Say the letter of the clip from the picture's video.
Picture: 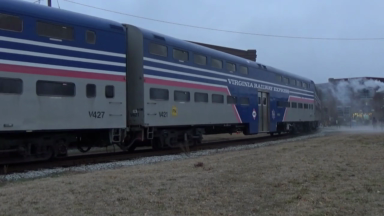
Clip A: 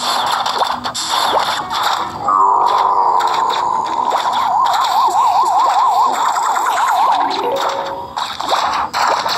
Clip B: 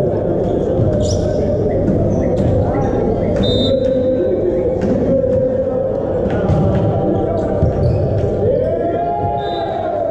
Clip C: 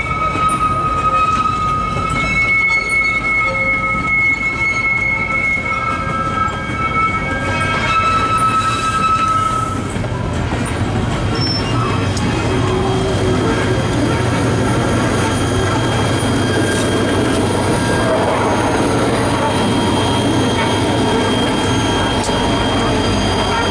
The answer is C